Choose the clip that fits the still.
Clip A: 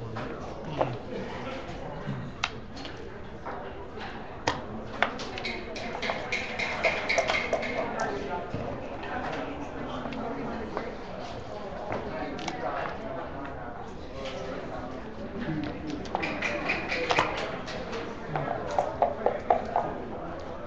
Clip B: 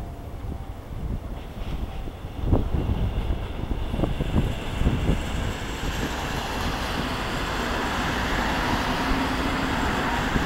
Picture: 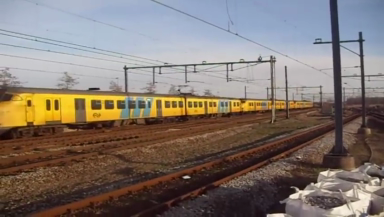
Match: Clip B